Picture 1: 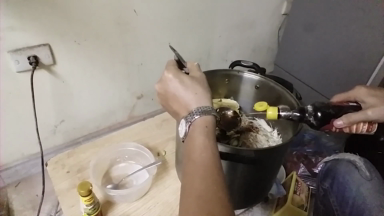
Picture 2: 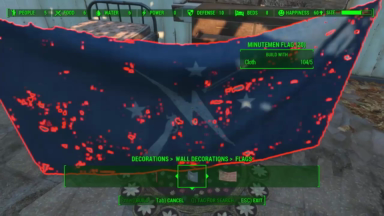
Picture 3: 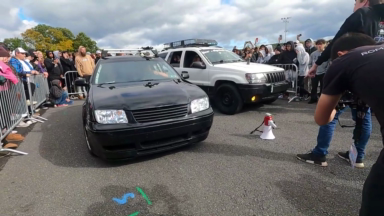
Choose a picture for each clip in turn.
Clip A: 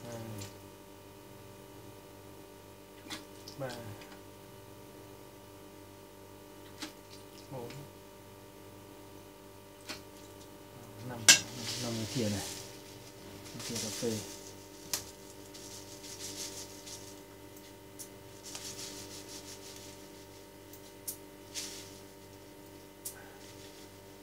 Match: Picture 1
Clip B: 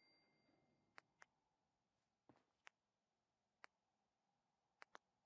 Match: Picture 2